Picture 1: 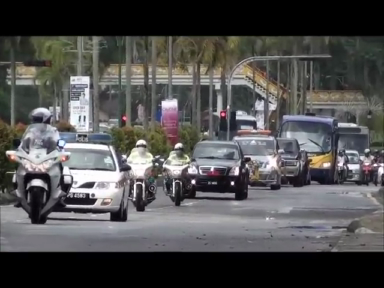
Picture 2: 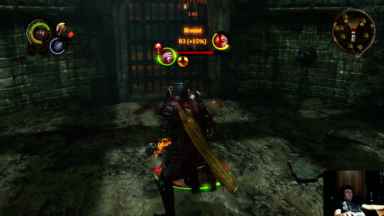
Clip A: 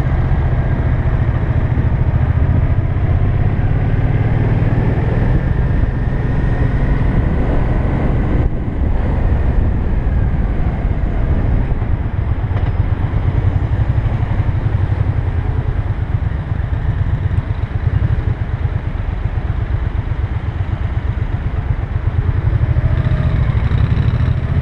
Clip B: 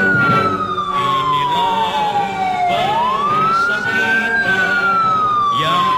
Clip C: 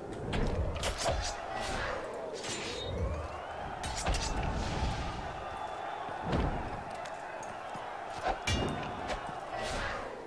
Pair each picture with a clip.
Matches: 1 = B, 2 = C